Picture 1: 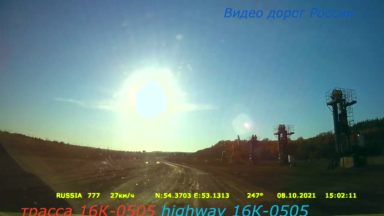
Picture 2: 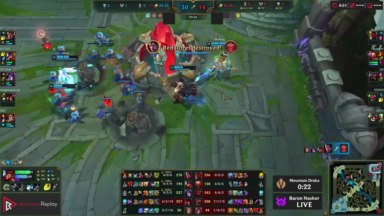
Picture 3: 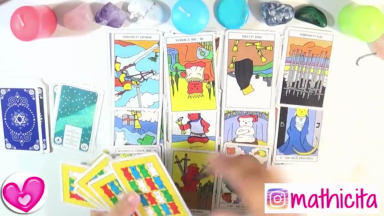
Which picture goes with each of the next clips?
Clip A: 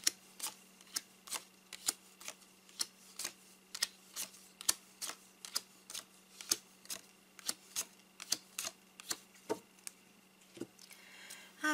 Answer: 3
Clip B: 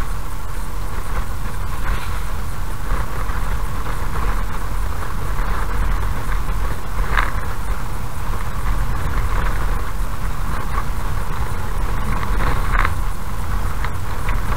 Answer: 1